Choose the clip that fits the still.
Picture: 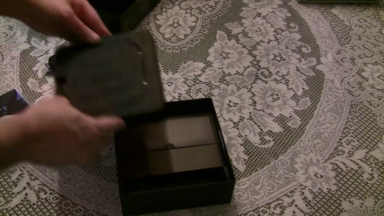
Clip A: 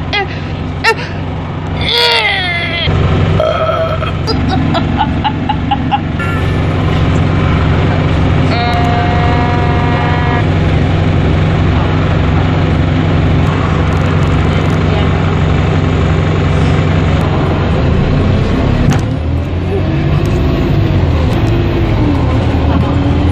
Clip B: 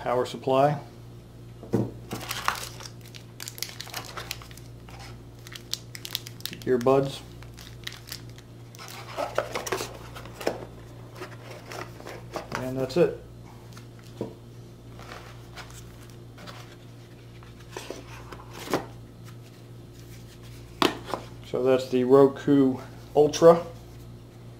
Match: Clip B